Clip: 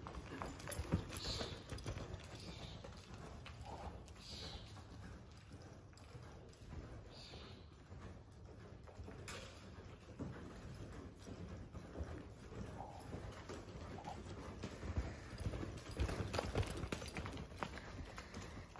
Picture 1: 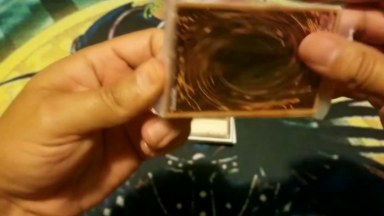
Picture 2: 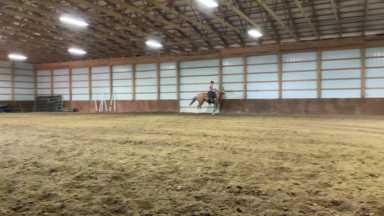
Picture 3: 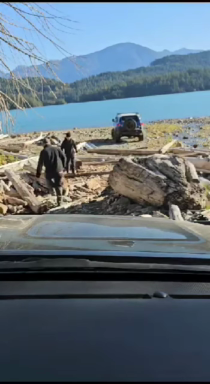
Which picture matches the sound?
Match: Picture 2